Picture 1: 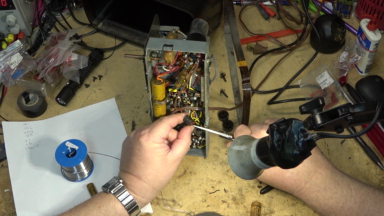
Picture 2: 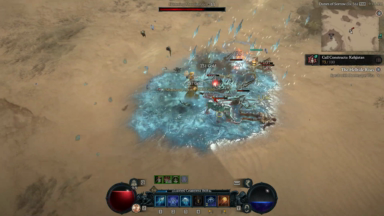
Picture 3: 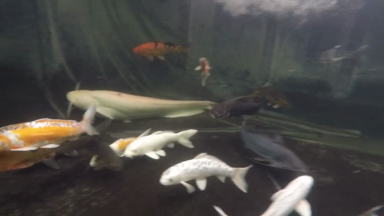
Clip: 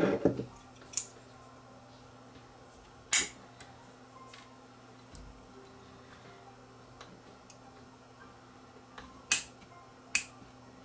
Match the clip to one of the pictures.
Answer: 1